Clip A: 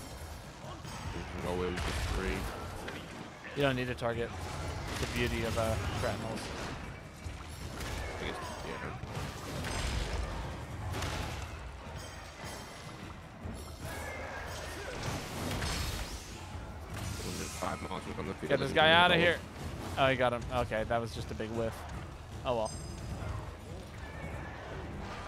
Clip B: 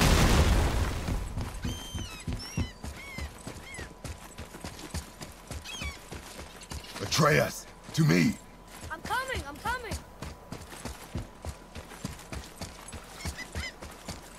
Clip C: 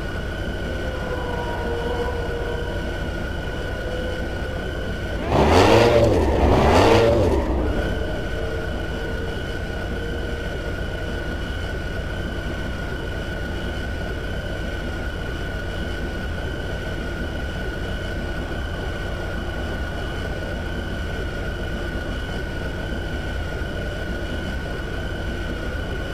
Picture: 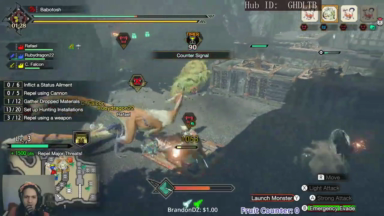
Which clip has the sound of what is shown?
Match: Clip A